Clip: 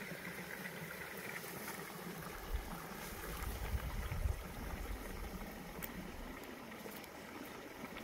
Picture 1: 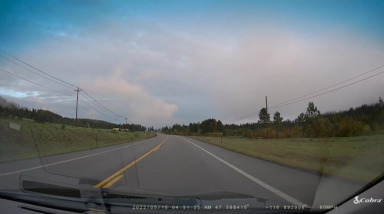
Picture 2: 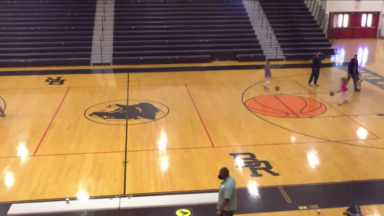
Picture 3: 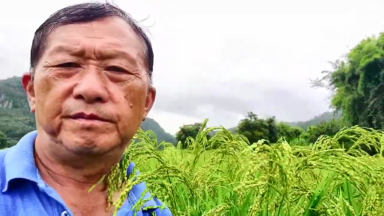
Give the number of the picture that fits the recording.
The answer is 3